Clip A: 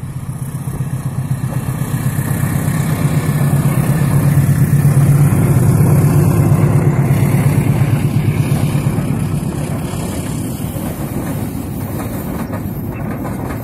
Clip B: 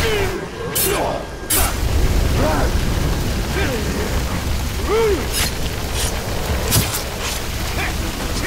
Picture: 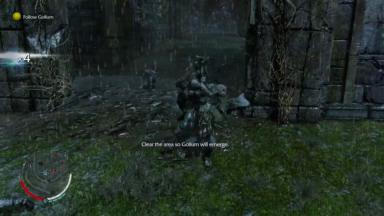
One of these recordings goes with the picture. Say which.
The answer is B